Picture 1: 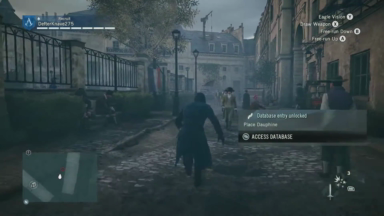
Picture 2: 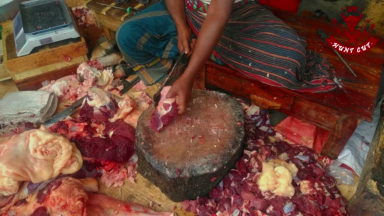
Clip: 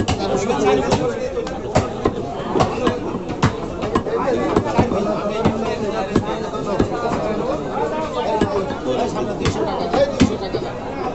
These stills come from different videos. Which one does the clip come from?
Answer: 2